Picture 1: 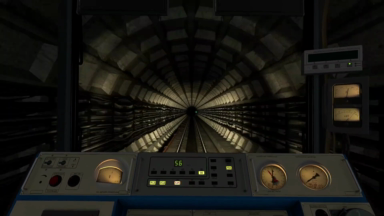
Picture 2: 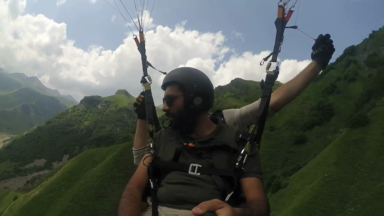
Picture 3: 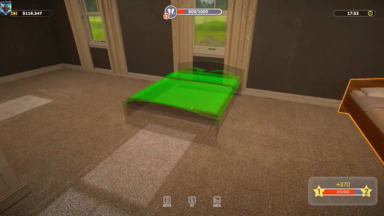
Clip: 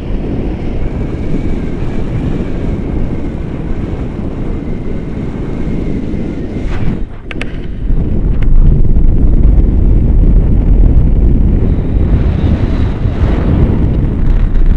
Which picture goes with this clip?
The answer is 2